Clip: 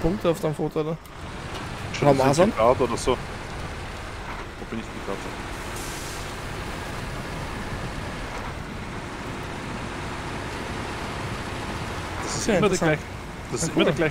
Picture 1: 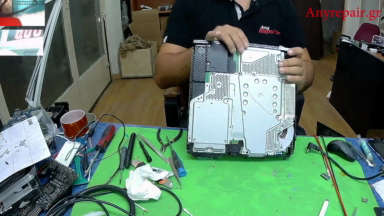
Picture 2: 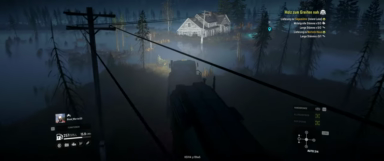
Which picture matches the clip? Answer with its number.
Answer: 2